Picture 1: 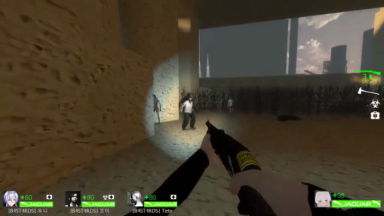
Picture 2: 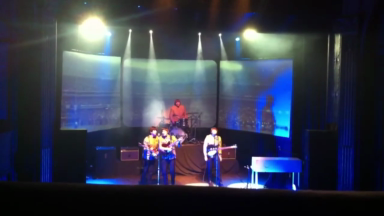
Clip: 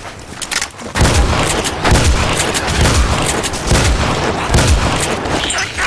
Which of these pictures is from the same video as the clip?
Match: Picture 1